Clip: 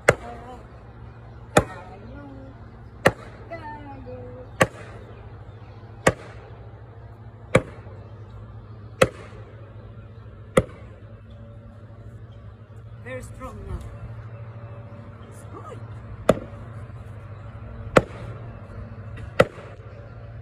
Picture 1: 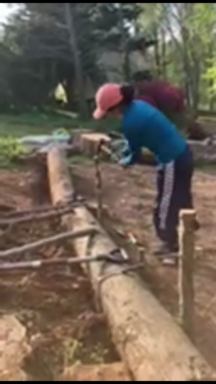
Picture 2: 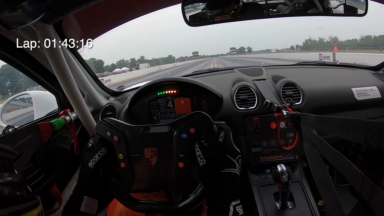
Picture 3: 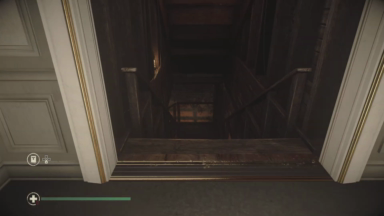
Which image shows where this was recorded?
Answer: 1